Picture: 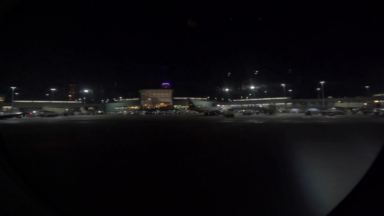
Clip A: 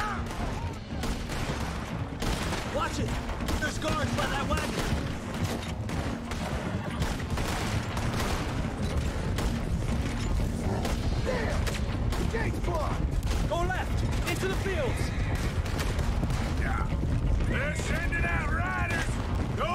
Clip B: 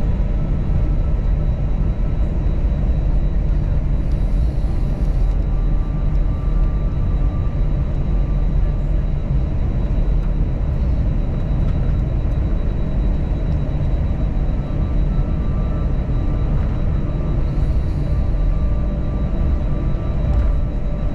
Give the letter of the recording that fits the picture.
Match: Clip B